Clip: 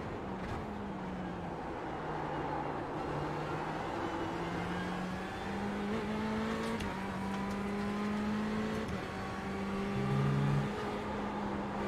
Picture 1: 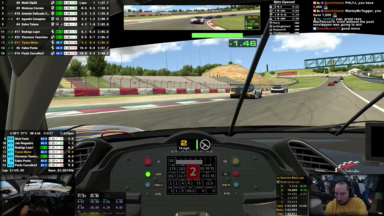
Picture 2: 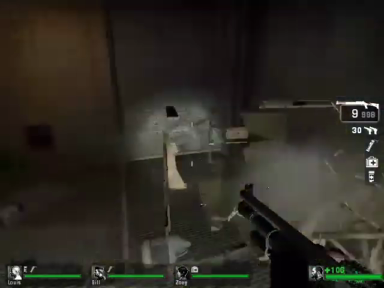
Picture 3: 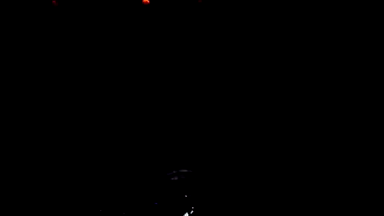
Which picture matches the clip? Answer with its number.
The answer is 1